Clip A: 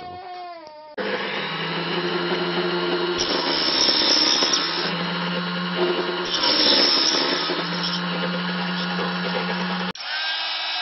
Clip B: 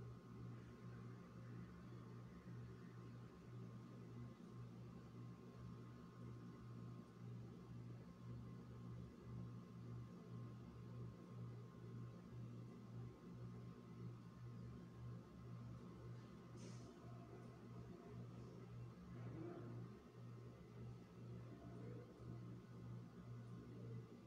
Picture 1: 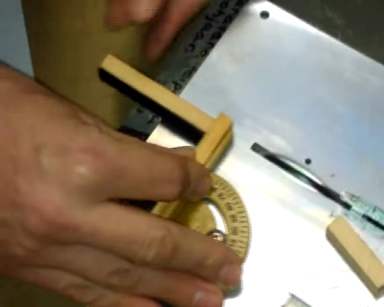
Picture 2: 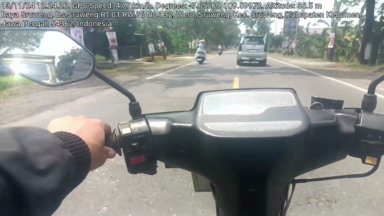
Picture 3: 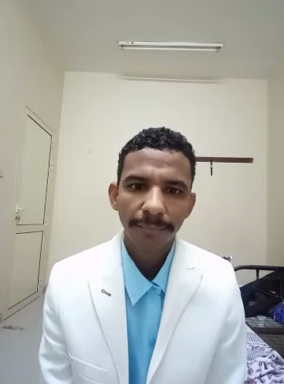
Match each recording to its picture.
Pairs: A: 1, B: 3